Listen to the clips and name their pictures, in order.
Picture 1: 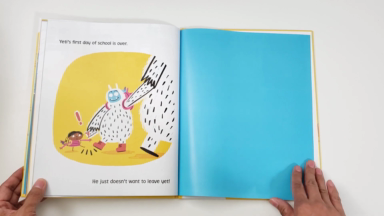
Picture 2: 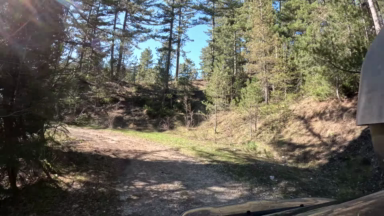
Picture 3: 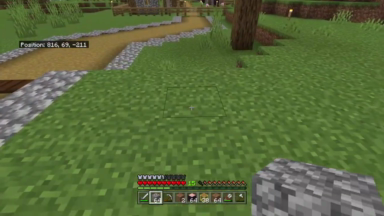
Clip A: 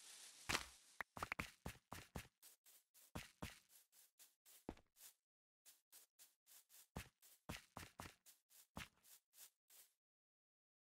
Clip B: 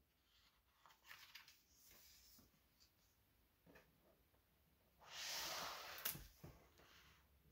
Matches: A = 3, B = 1